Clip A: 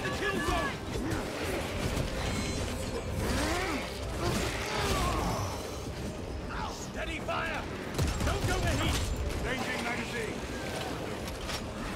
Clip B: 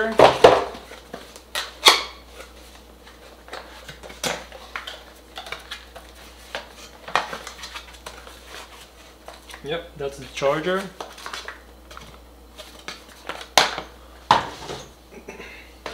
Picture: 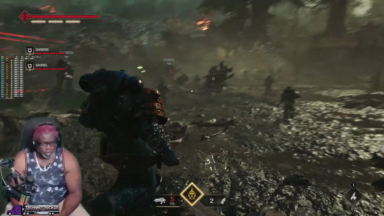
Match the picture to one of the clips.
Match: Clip A